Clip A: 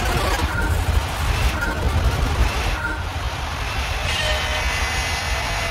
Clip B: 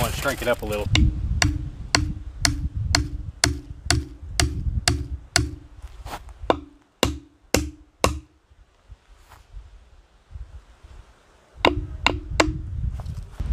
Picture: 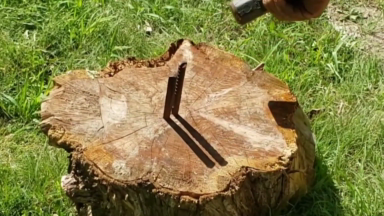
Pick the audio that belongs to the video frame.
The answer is B